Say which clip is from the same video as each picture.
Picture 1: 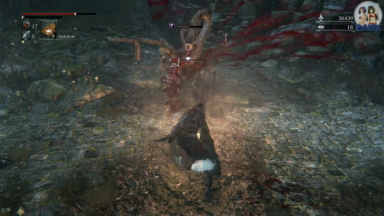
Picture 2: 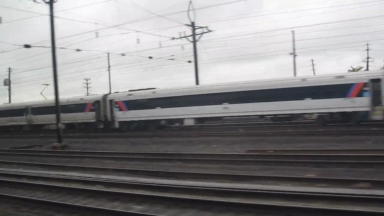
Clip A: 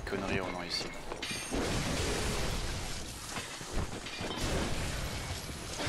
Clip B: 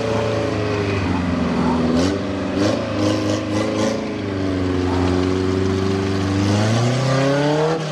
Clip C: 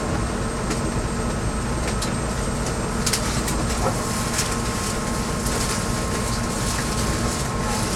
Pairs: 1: A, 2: C